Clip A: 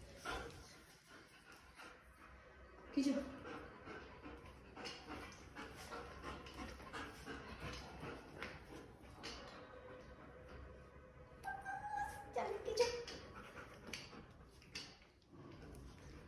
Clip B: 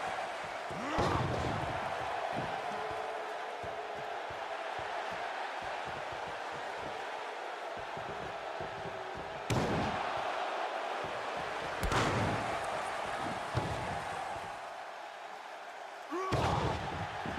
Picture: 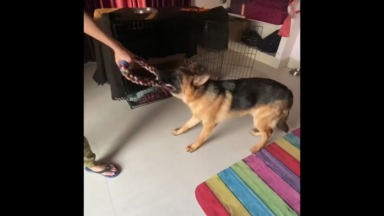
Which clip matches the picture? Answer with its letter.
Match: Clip A